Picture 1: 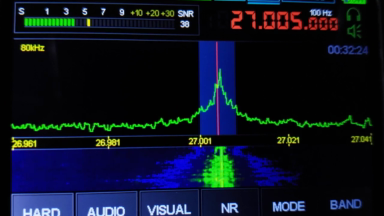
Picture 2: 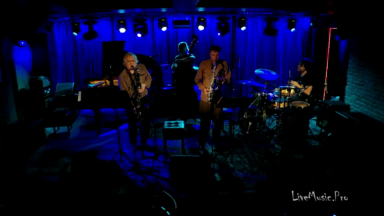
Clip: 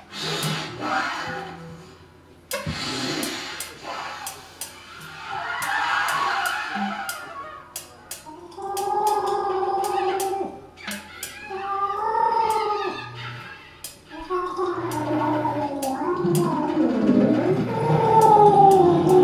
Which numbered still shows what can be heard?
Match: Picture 2